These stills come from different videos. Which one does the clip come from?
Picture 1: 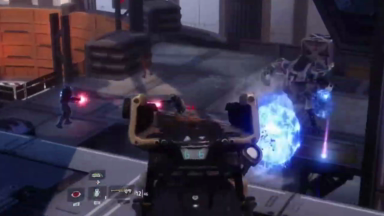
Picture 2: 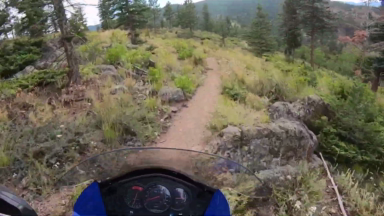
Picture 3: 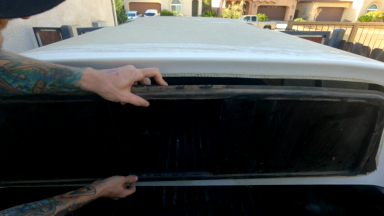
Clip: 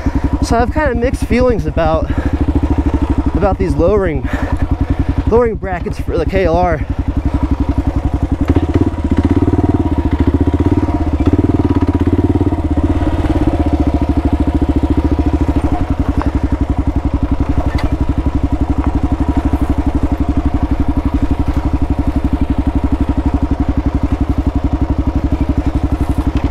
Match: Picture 2